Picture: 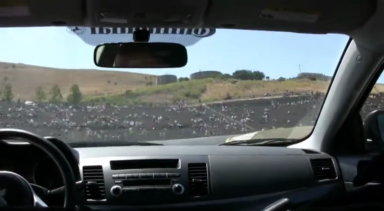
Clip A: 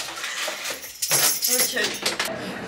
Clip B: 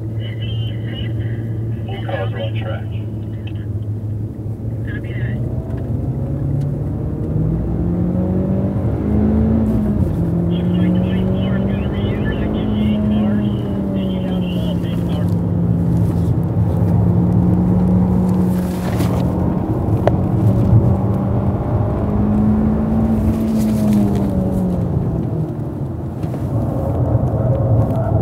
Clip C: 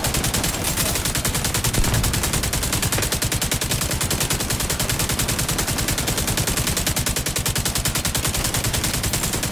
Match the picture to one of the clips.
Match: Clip B